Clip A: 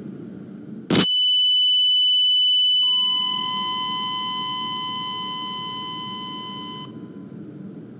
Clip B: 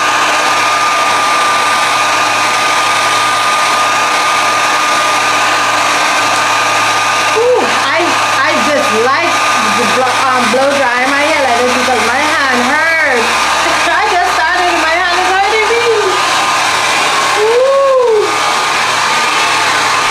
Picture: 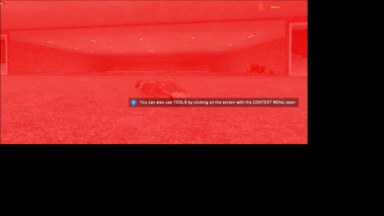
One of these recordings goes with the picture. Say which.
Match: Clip A